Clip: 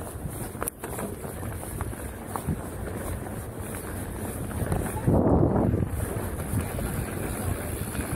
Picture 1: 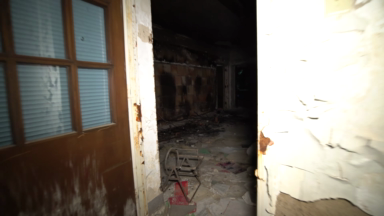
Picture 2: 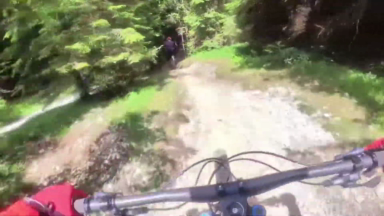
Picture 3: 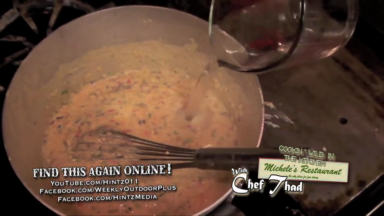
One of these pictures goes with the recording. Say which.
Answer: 2